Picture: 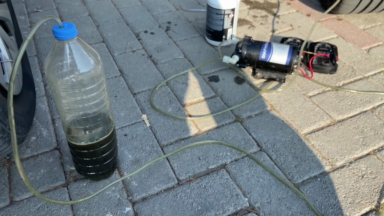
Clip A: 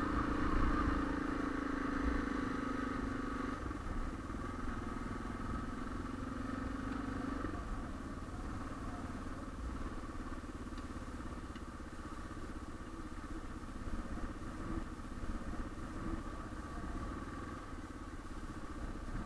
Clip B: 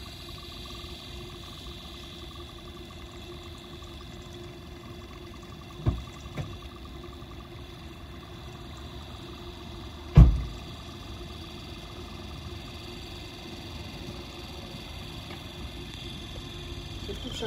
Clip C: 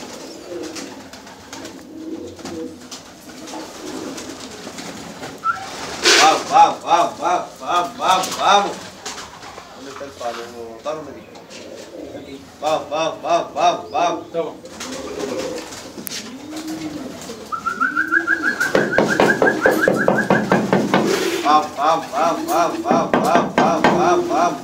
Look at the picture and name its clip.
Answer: B